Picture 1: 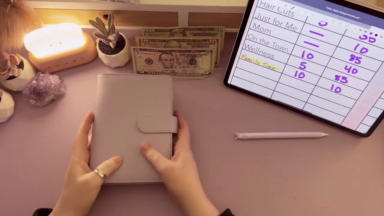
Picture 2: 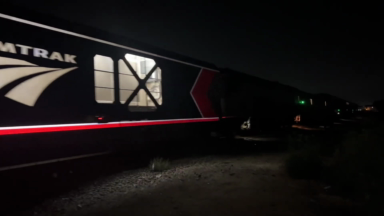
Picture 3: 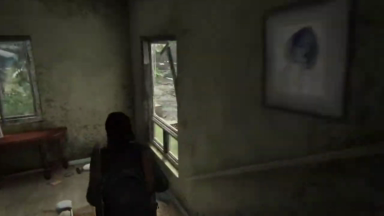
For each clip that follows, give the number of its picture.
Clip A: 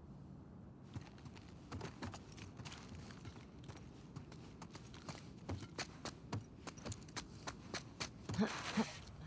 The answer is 3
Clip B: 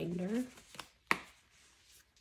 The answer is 1